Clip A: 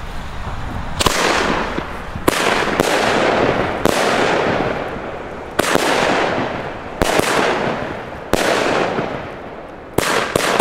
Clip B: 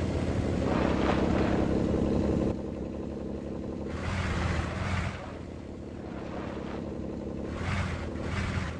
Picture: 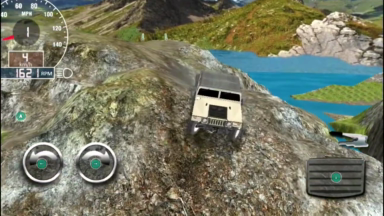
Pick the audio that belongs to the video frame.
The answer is B